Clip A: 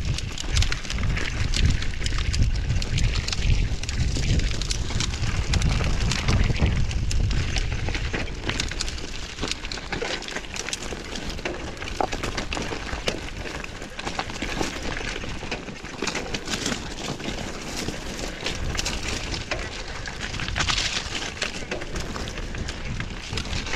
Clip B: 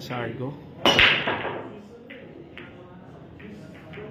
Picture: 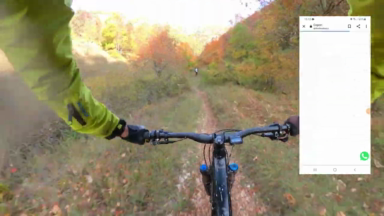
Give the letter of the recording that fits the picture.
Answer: A